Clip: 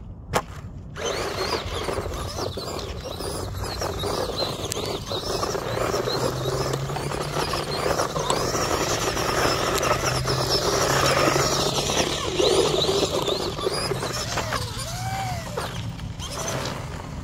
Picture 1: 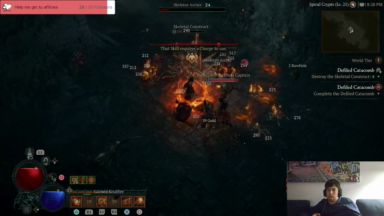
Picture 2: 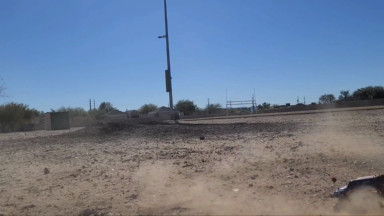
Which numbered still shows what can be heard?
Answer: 2